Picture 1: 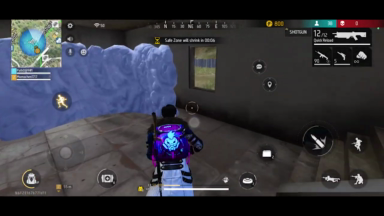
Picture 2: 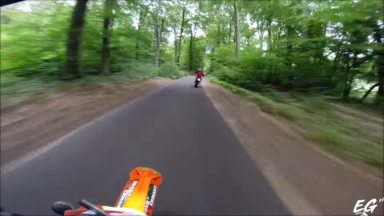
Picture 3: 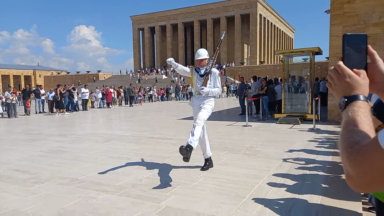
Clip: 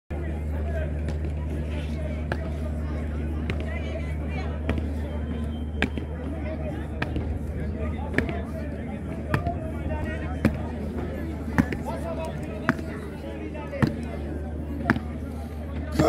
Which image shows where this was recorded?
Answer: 3